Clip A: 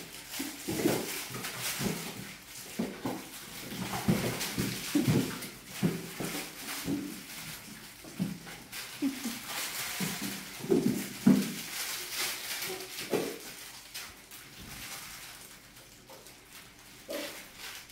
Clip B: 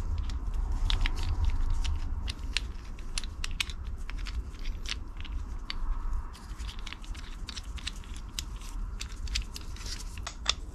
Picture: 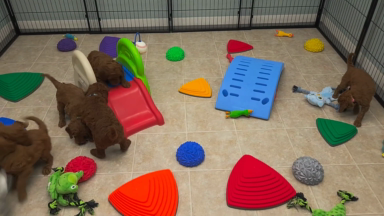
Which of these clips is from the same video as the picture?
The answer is A